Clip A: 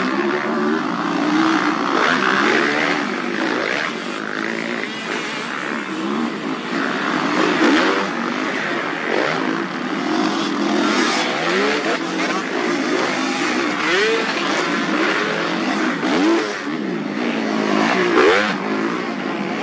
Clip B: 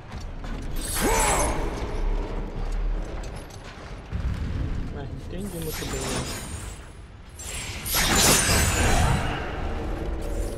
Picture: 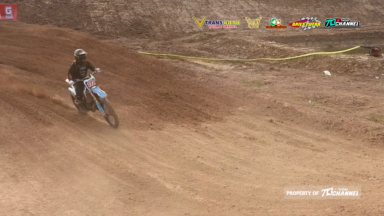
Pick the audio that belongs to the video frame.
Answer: A